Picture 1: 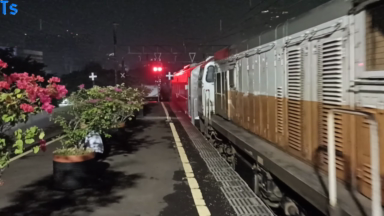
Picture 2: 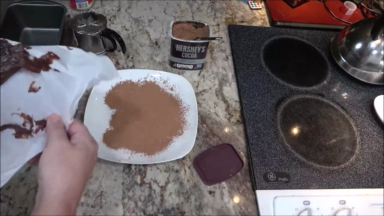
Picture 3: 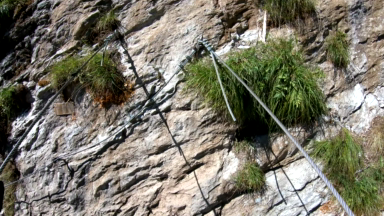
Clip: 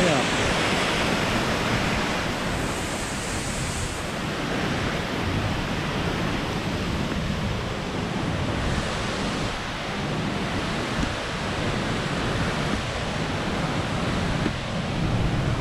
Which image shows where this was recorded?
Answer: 3